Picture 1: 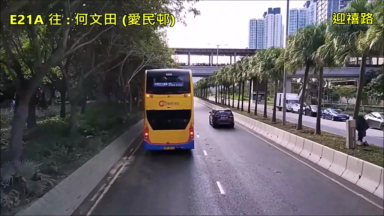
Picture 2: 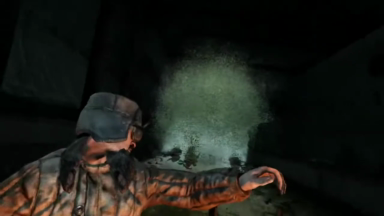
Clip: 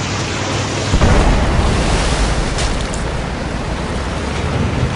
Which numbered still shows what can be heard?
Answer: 2